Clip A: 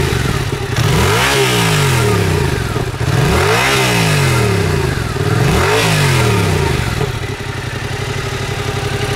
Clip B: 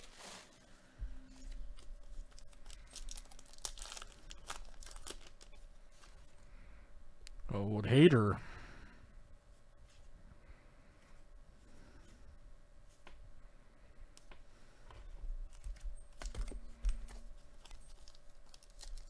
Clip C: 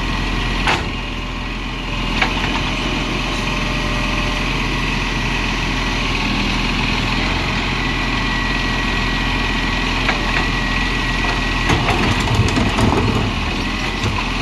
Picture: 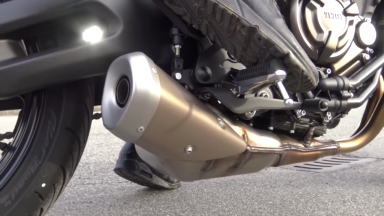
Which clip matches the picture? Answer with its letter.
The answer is A